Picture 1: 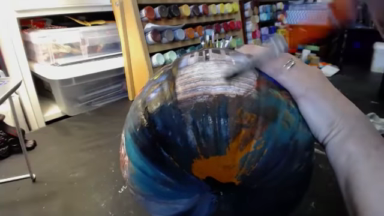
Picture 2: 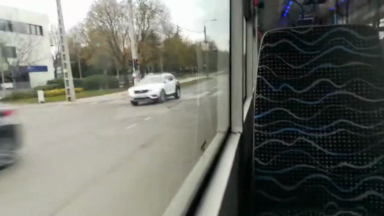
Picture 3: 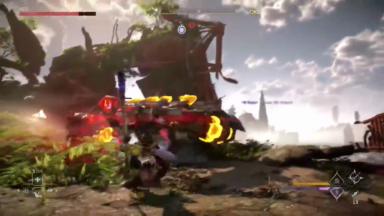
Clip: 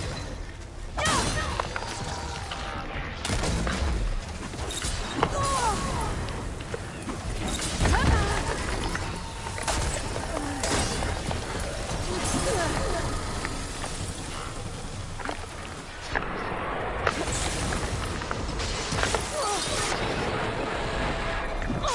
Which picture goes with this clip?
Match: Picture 3